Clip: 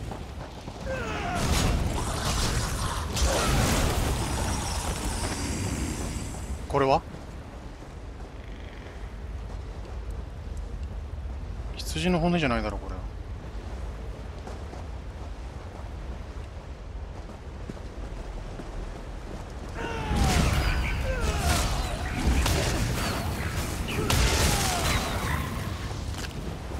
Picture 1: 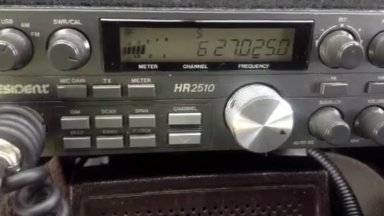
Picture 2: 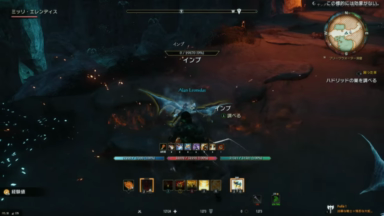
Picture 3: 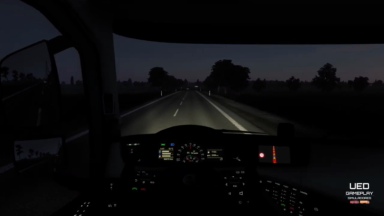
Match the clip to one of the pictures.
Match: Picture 2